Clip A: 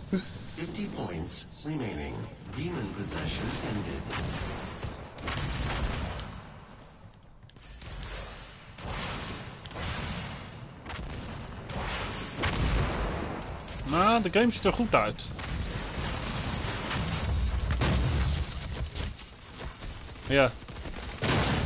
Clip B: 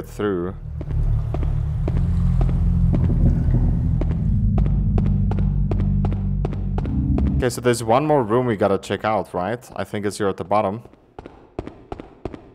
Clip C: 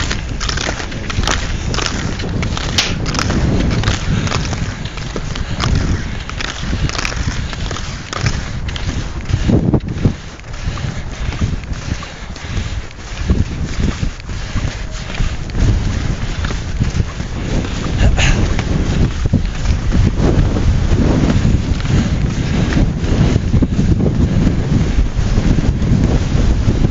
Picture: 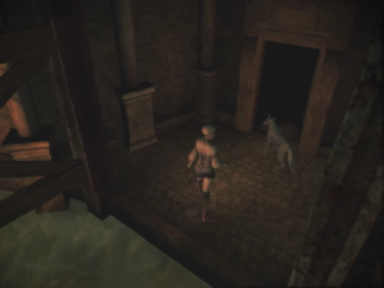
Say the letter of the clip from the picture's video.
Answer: B